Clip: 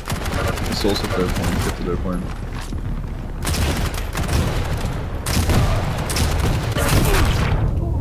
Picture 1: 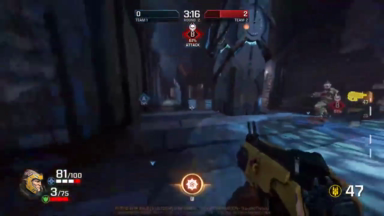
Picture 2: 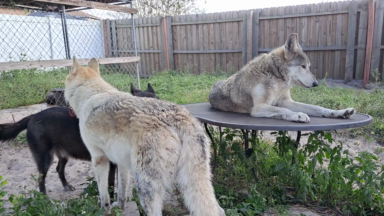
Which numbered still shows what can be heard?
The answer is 1